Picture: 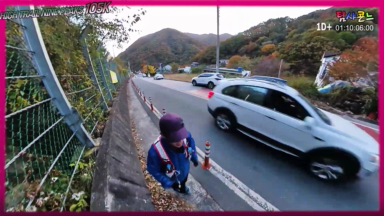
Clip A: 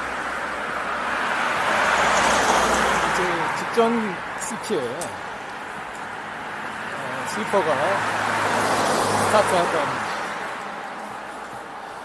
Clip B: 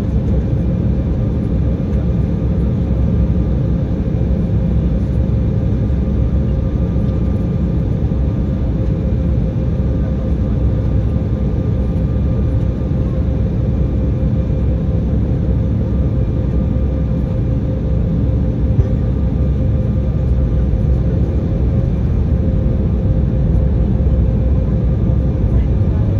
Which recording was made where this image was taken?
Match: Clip A